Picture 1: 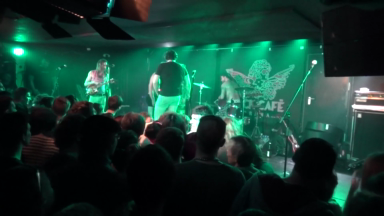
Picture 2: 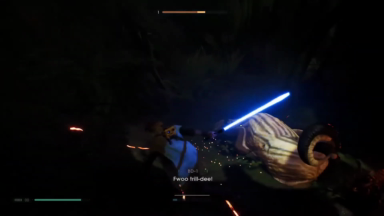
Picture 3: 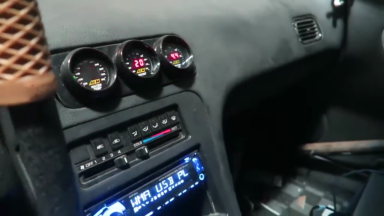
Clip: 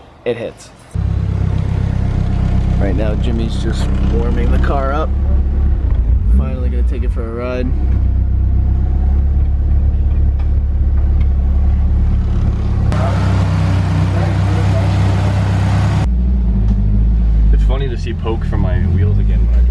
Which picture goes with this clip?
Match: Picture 3